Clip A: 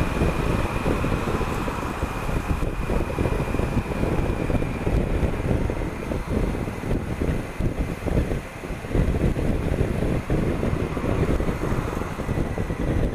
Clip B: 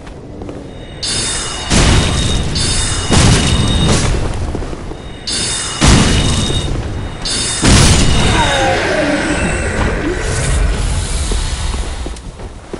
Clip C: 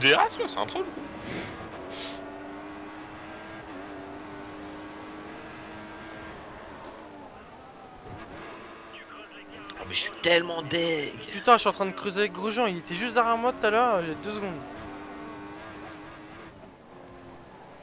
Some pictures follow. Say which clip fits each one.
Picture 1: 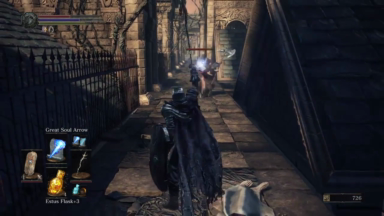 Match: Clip B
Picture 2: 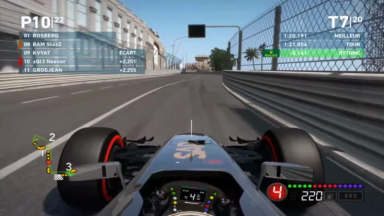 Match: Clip C